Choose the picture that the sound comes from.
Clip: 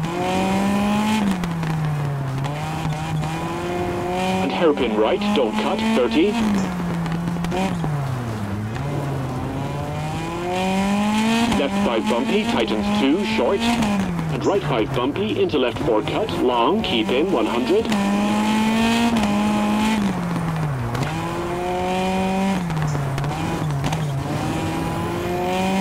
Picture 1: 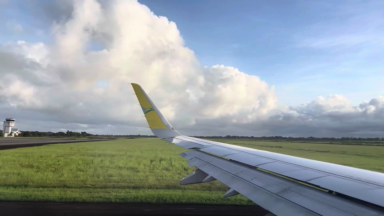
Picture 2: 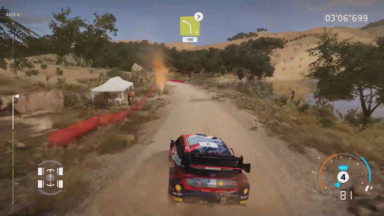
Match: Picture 2